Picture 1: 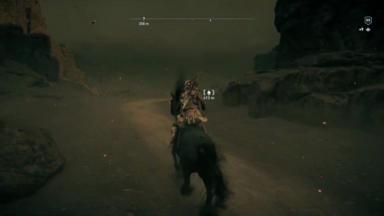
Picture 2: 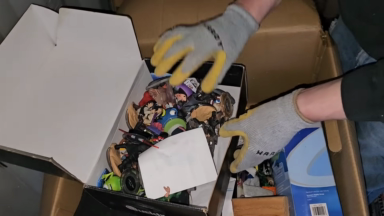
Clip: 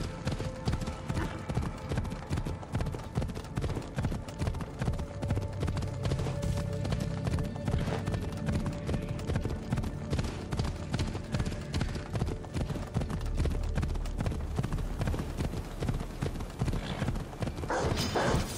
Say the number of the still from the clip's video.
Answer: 1